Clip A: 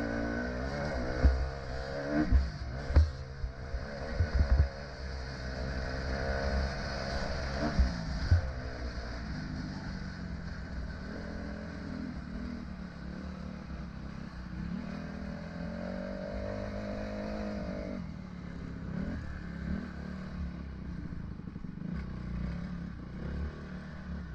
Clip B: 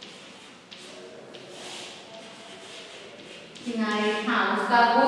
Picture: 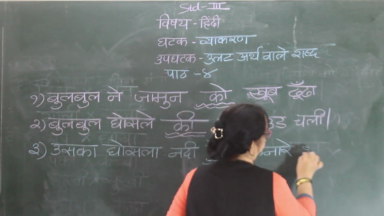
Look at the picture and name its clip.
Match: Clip B